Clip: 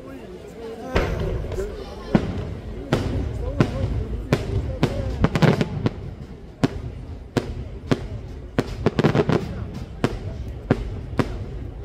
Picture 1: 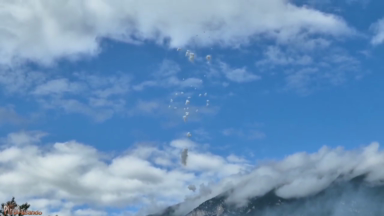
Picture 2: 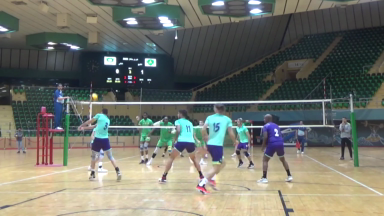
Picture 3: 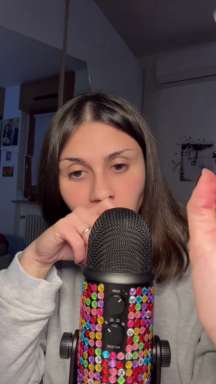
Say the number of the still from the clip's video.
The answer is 1